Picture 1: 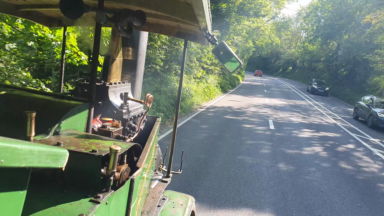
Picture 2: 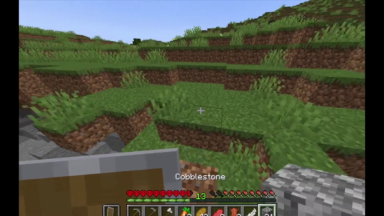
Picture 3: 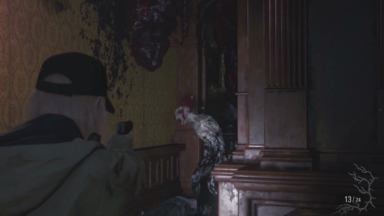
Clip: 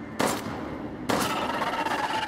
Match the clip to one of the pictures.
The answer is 3